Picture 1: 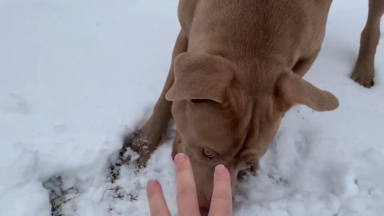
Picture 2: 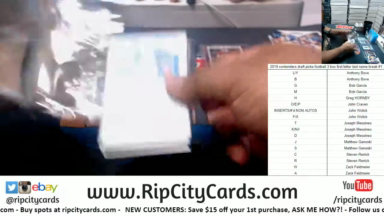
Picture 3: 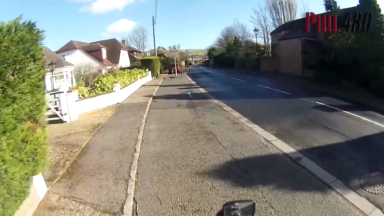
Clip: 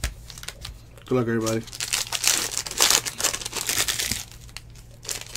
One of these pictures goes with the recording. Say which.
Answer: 2